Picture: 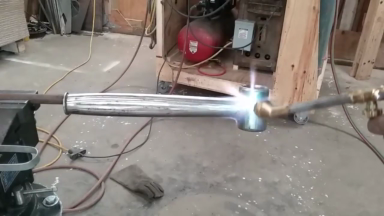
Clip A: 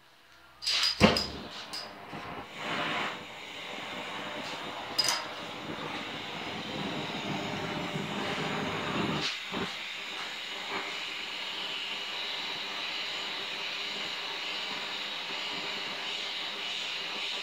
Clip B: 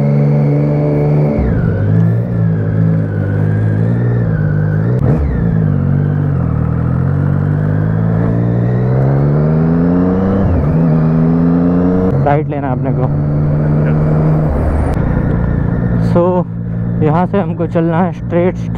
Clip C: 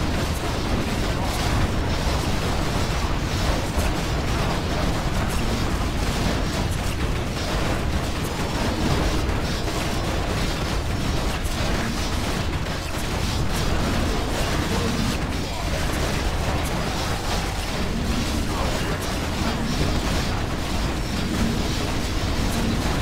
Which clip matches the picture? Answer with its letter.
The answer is A